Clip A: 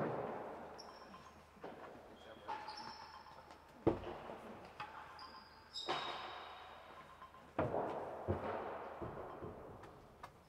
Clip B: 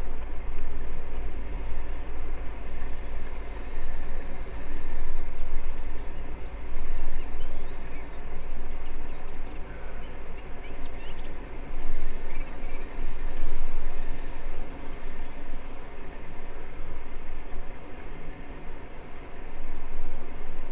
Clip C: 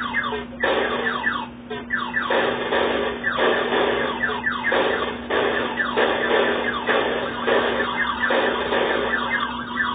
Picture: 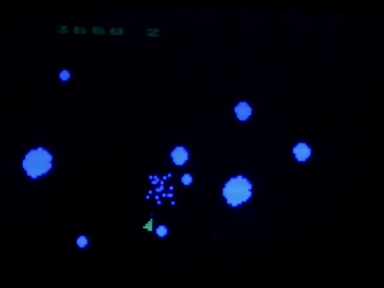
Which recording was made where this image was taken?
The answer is C